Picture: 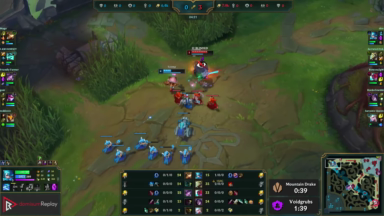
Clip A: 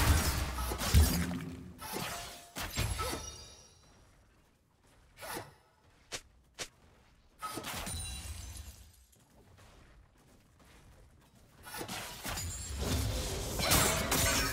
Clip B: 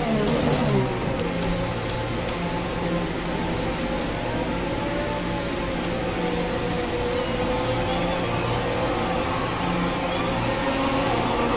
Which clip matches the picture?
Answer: A